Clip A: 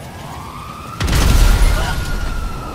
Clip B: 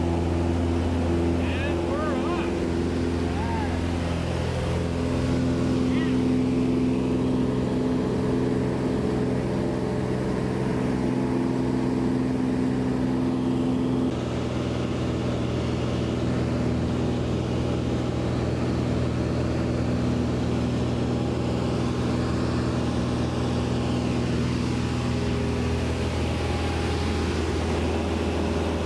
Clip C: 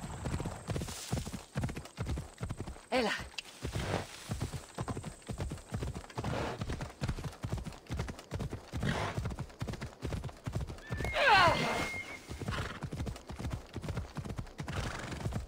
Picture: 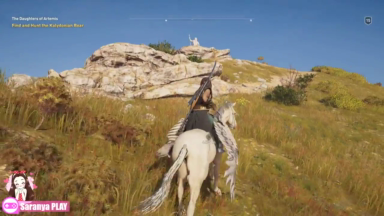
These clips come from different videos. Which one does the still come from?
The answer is C